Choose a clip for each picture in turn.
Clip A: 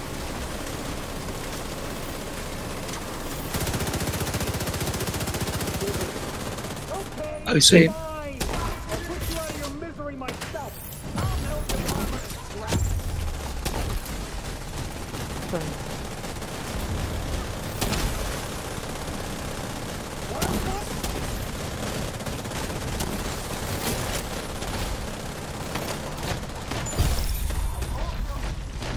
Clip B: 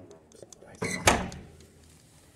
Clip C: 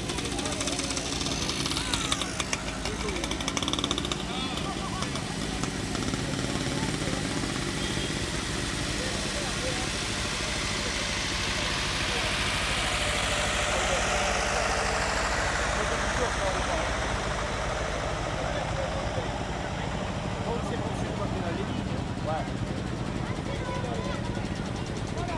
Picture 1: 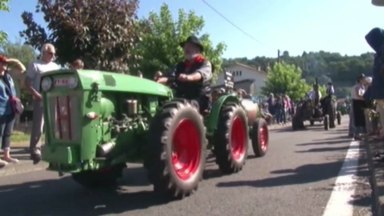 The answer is C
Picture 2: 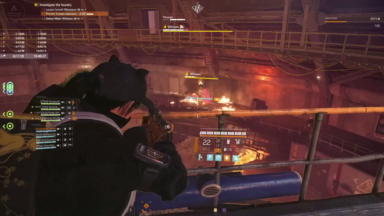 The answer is A